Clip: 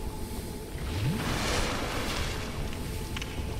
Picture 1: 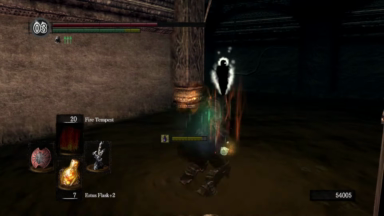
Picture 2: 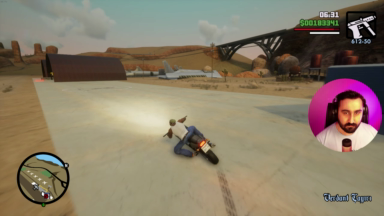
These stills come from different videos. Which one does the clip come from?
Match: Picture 1